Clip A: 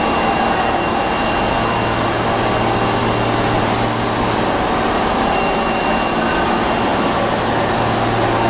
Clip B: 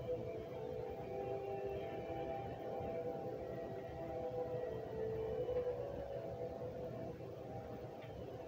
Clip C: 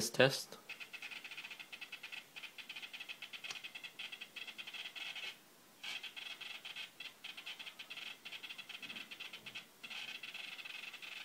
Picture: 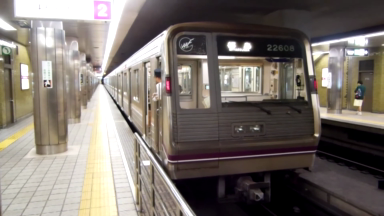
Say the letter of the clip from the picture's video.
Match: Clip A